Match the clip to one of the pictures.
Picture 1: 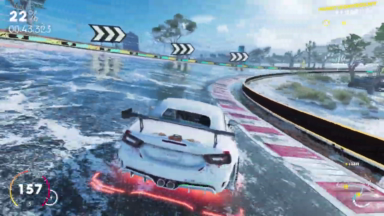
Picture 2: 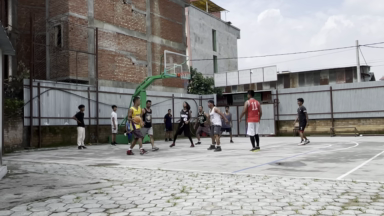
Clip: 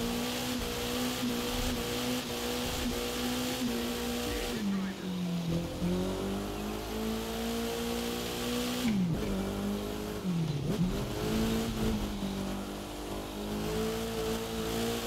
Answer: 1